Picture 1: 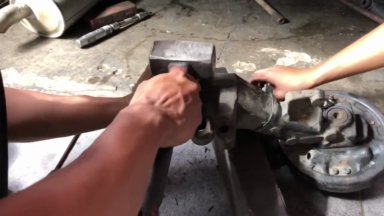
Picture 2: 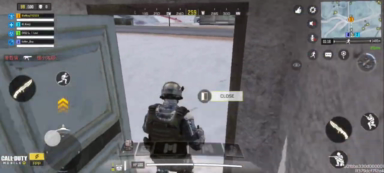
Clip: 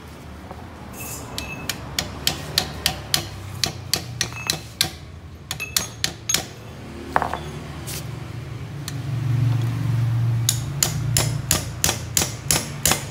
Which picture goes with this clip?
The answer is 1